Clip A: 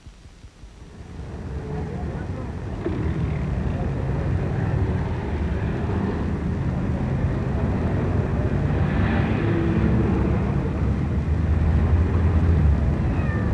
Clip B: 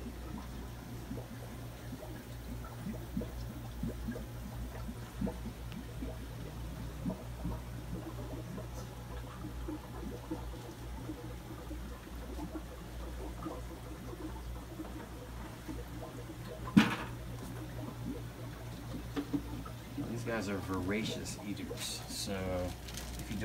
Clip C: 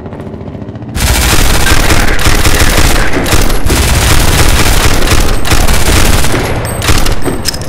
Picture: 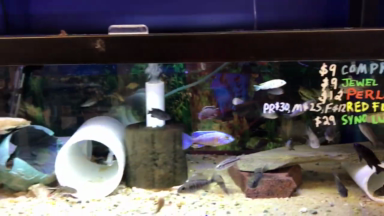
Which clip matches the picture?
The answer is B